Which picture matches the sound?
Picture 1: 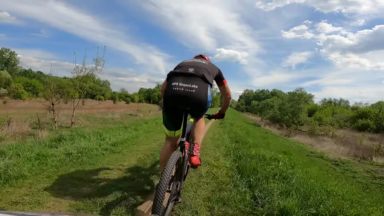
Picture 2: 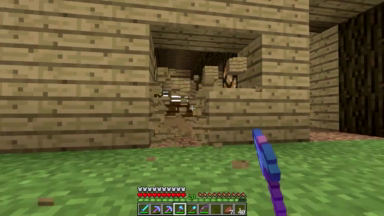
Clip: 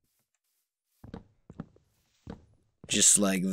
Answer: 2